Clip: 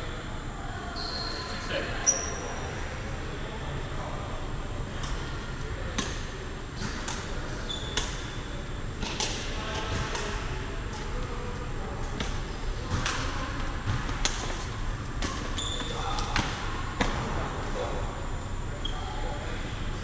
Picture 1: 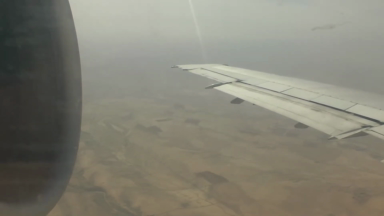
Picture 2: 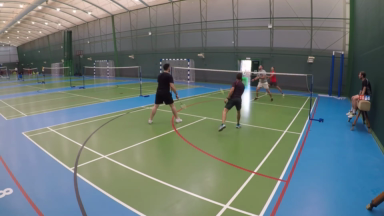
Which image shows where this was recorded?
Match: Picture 2